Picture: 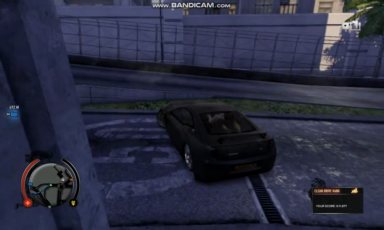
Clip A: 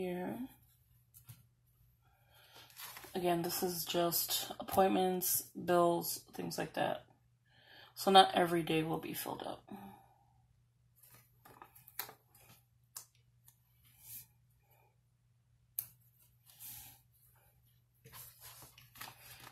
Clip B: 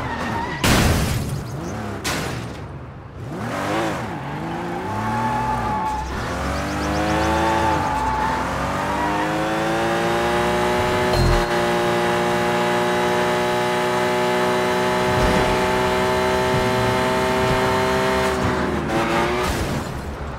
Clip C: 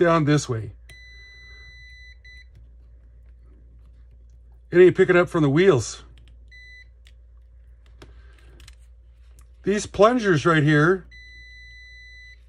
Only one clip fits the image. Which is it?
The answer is B